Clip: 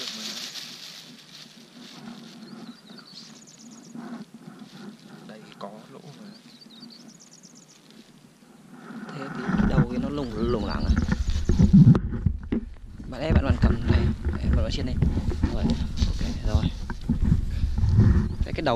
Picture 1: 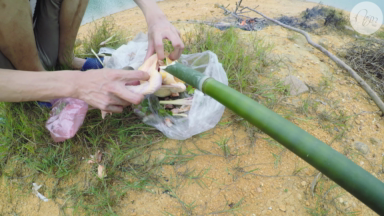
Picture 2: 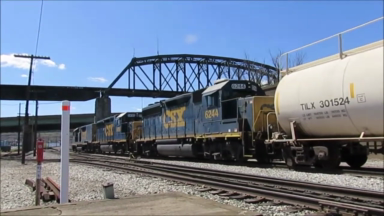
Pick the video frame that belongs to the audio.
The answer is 1